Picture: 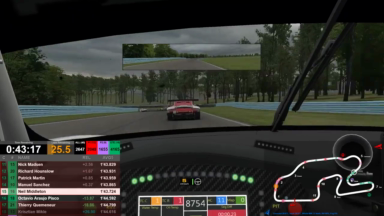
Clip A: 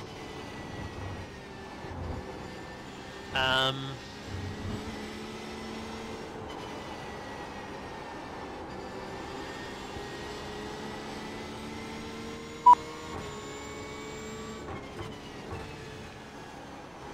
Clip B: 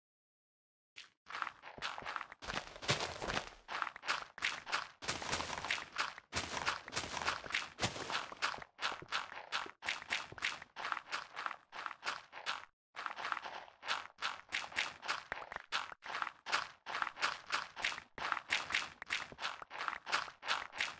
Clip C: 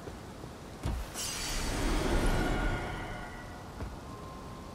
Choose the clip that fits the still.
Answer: A